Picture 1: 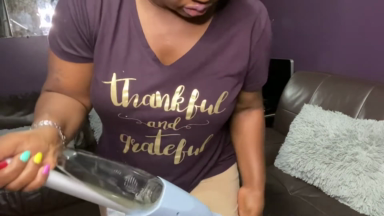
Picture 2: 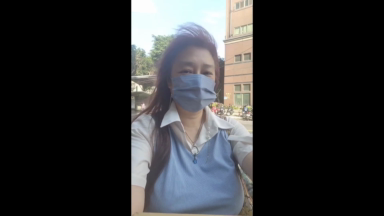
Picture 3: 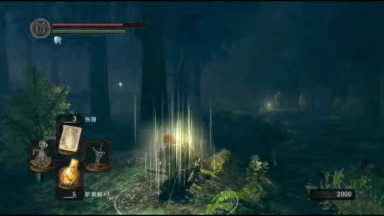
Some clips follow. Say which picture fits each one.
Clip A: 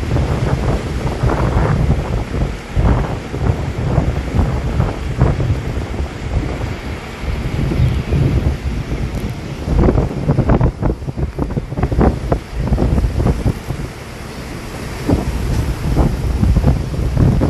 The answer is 2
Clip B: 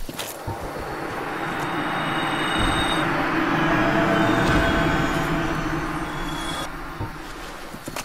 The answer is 3